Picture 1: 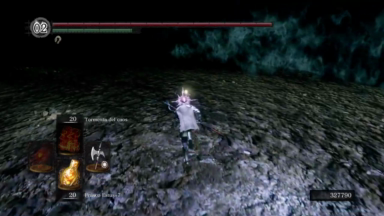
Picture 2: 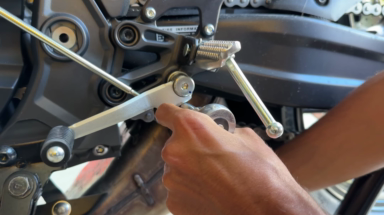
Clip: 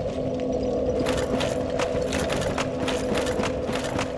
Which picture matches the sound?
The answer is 1